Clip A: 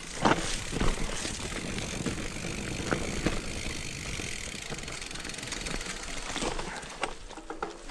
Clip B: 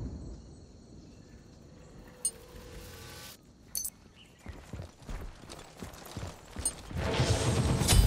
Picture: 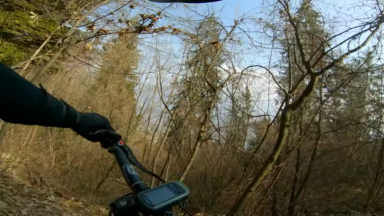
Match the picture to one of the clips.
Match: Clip A